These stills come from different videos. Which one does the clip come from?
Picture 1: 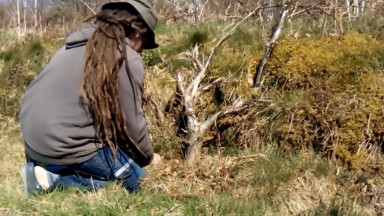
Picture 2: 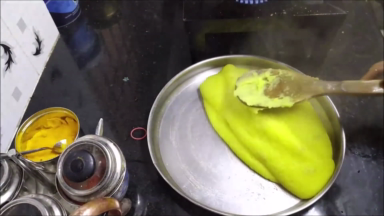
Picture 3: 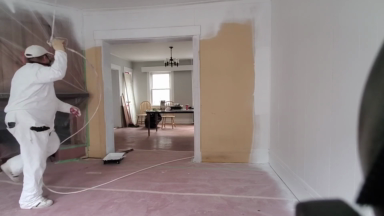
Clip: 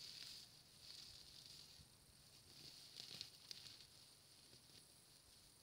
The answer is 1